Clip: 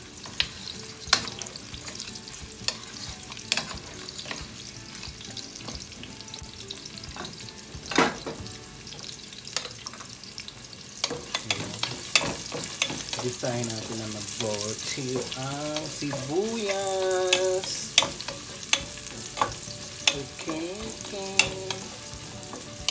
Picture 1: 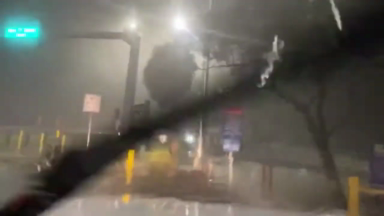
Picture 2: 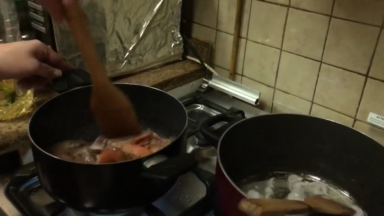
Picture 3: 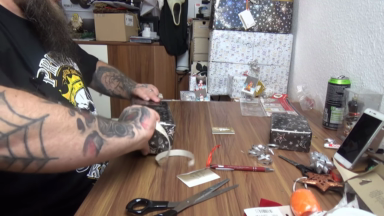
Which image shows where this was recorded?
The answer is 2